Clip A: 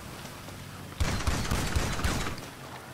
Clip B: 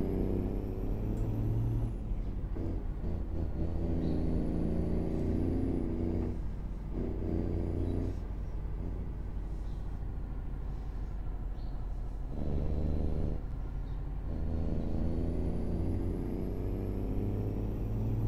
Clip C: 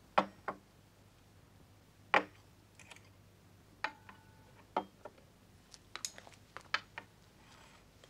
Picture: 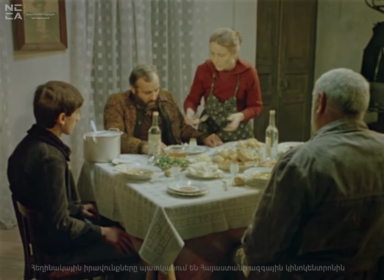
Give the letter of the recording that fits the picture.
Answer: C